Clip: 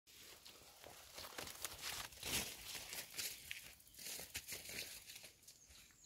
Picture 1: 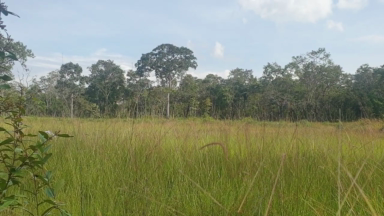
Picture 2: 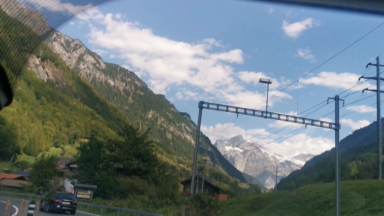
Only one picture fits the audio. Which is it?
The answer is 1